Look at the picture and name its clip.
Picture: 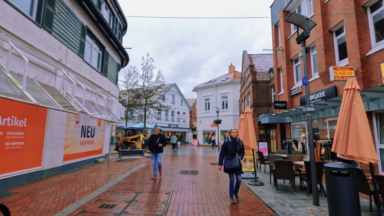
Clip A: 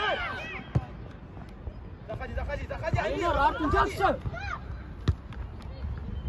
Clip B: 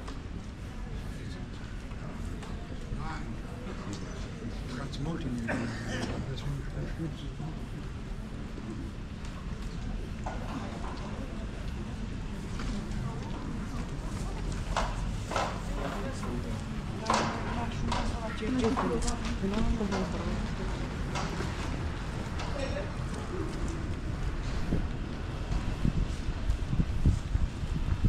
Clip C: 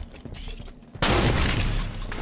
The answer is B